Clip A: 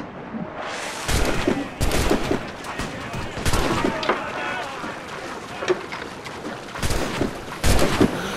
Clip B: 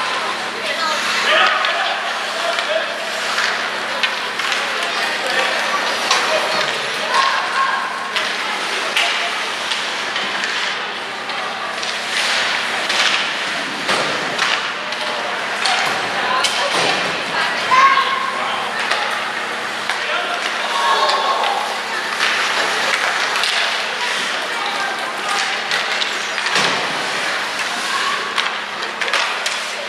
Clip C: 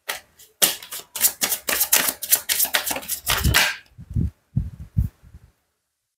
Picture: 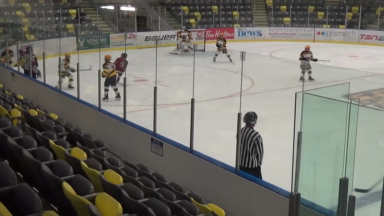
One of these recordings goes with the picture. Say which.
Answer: B